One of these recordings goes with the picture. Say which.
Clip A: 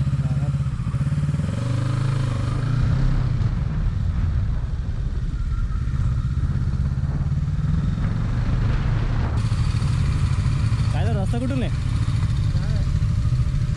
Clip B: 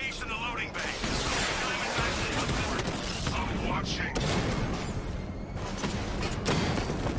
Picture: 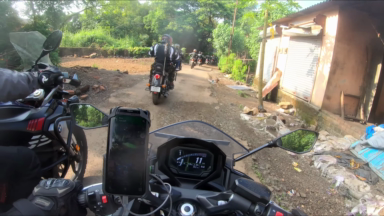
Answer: A